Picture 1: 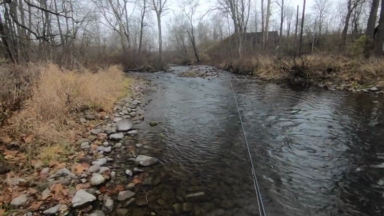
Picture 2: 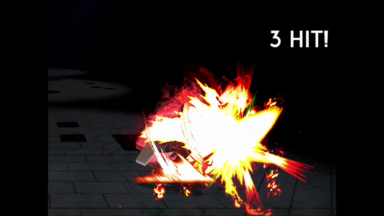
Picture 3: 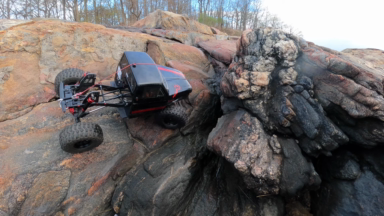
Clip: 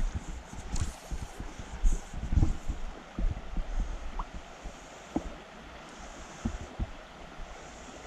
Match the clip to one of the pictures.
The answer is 1